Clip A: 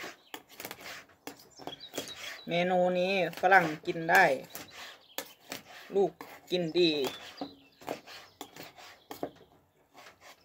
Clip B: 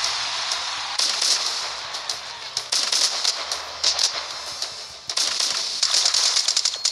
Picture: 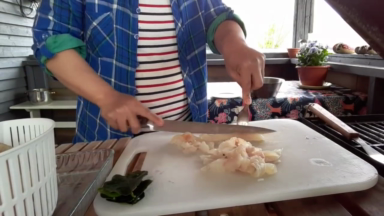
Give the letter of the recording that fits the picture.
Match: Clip A